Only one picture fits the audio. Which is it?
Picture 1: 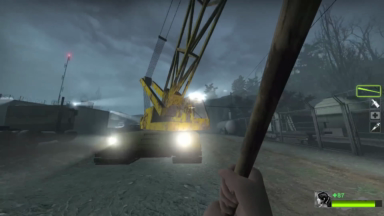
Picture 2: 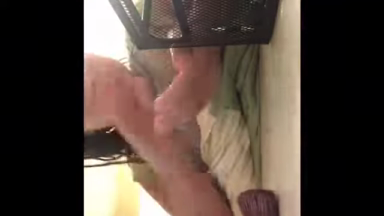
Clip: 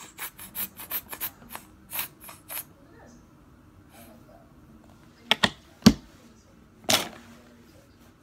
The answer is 2